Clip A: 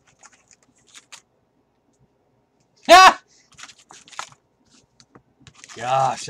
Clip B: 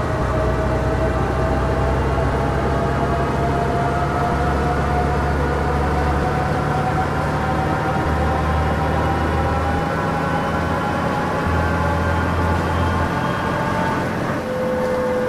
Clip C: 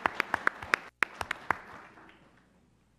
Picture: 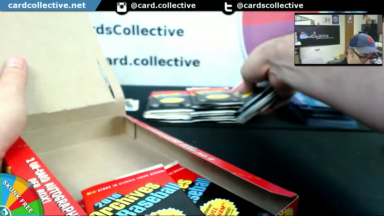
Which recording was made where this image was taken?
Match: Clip A